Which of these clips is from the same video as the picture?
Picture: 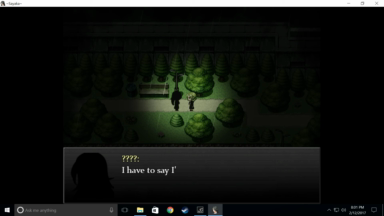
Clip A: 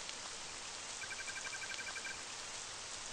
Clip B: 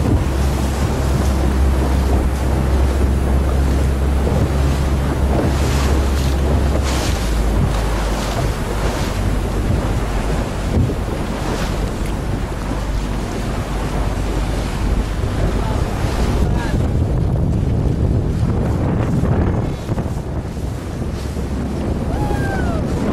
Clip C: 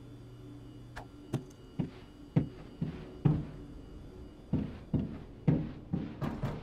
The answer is A